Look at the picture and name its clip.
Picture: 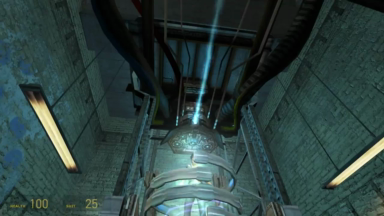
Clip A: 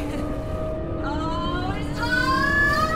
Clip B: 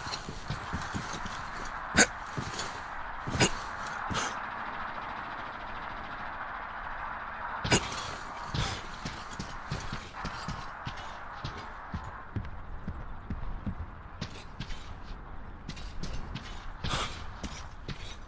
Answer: A